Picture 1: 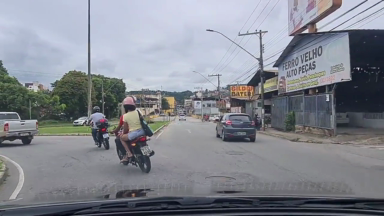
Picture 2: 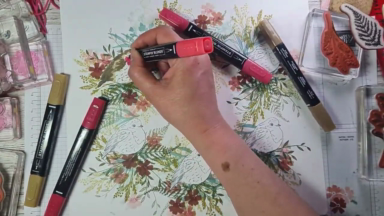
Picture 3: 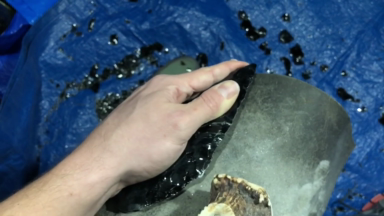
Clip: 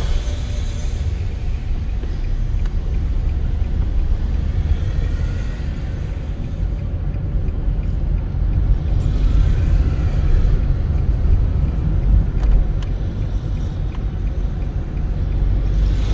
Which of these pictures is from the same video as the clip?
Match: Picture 1